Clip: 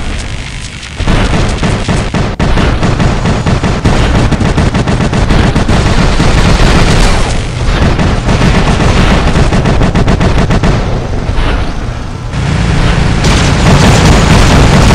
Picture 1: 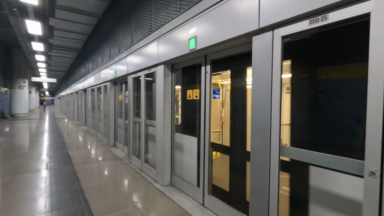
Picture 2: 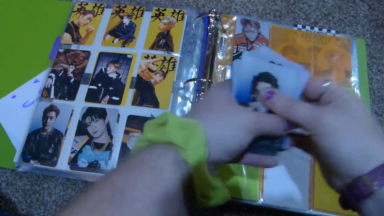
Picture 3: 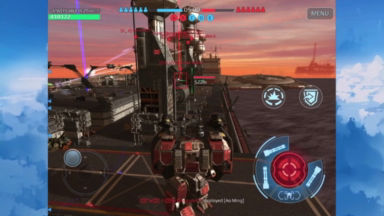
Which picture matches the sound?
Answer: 3